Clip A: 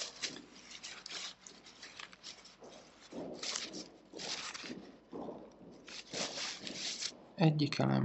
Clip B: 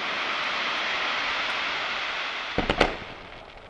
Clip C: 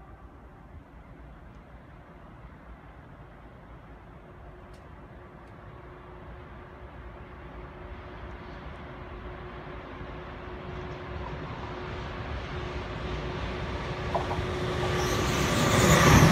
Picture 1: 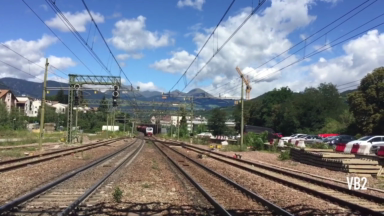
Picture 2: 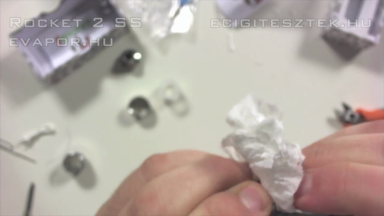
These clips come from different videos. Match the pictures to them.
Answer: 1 C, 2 A